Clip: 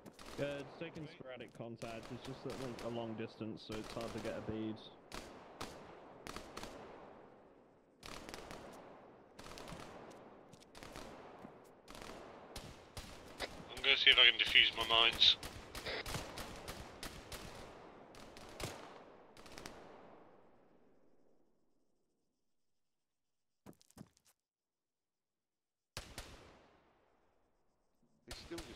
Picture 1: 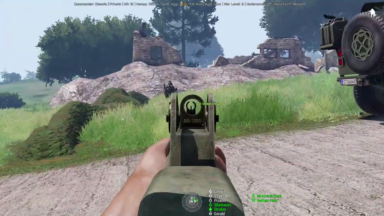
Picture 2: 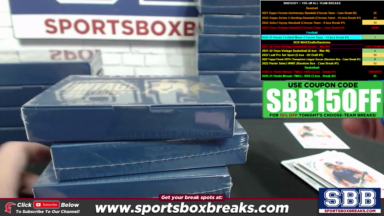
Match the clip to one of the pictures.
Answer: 1